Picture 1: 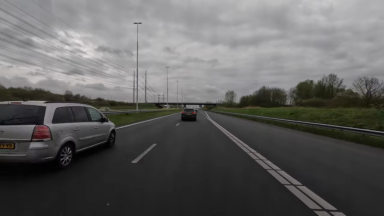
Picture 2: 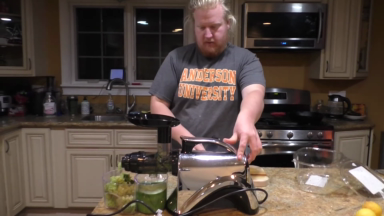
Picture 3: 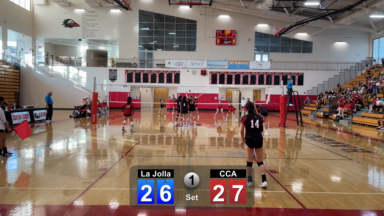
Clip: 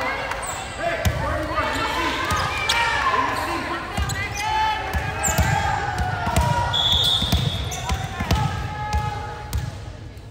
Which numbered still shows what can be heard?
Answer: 3